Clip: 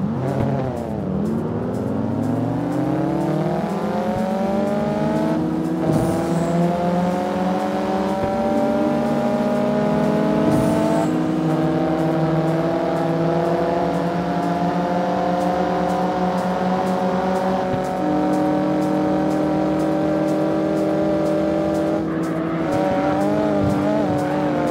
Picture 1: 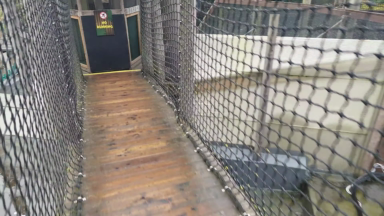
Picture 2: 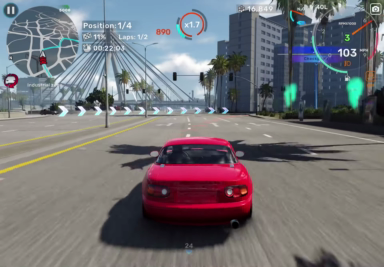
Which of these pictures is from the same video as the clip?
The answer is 2